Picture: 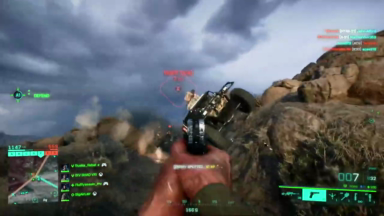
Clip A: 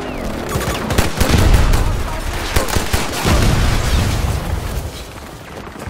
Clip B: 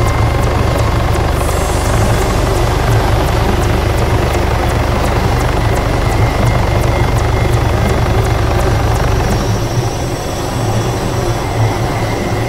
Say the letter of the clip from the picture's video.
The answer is A